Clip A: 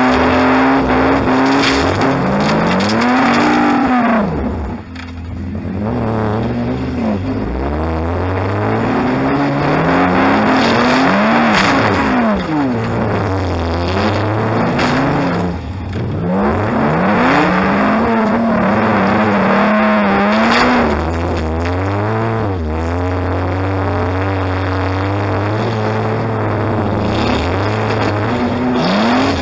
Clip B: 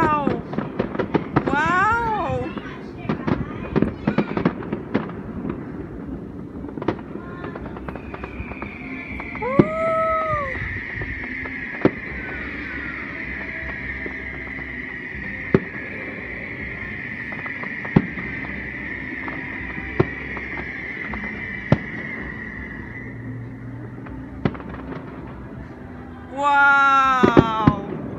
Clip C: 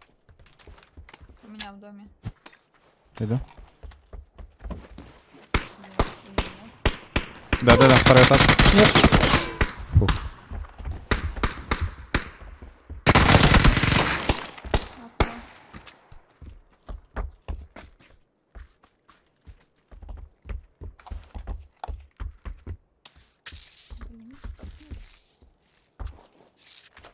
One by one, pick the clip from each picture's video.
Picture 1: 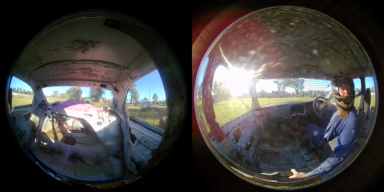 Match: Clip A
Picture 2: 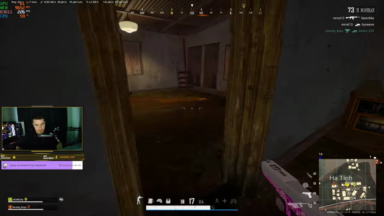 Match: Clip C